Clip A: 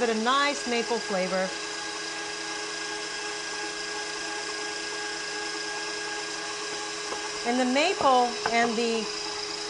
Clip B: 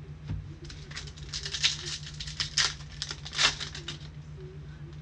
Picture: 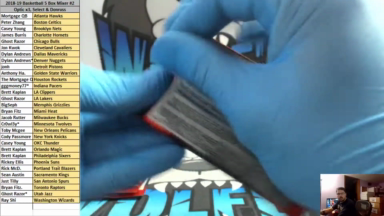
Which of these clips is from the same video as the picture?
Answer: B